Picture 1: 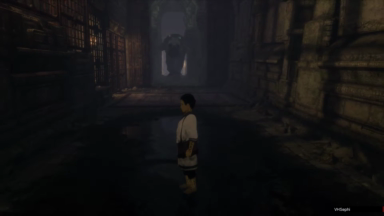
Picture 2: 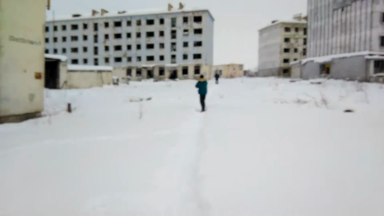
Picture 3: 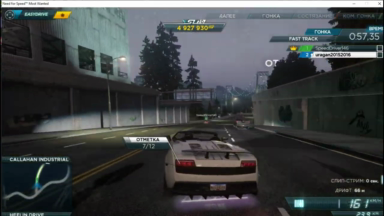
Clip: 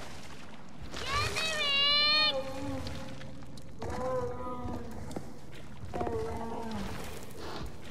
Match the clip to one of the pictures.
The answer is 1